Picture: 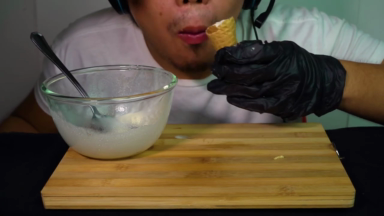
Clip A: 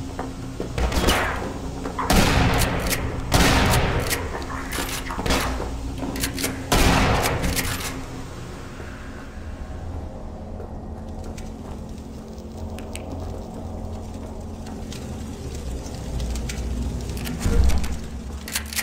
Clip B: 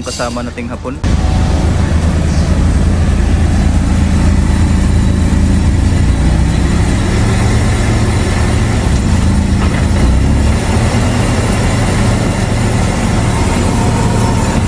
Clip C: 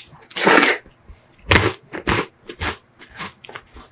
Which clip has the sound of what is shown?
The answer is C